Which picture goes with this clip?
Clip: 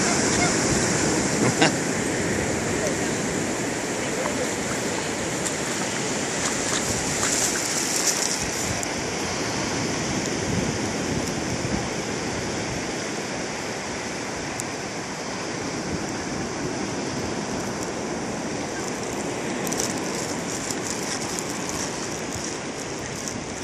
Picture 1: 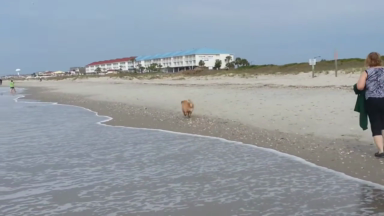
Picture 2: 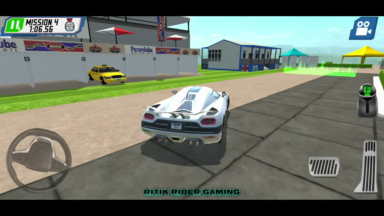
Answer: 1